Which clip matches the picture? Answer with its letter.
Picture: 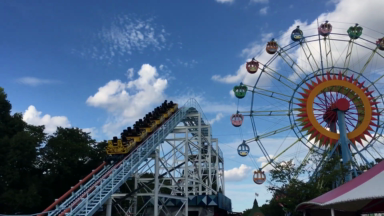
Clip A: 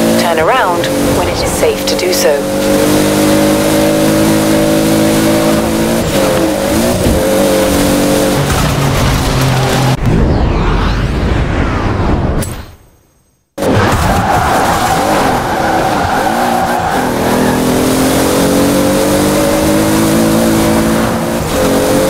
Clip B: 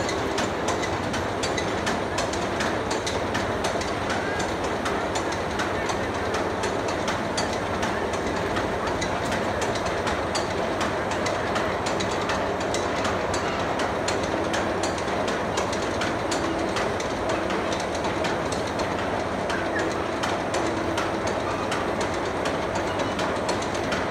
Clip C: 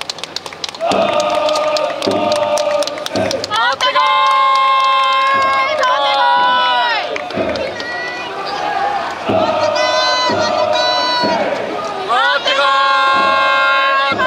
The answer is B